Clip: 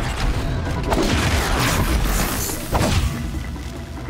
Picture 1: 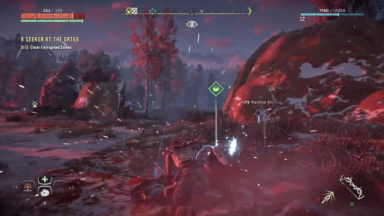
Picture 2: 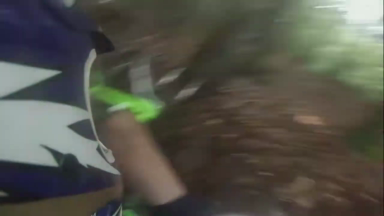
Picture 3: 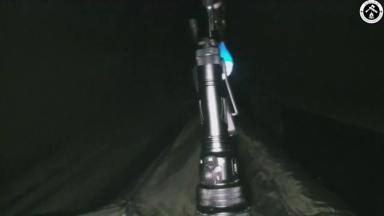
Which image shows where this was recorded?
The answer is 1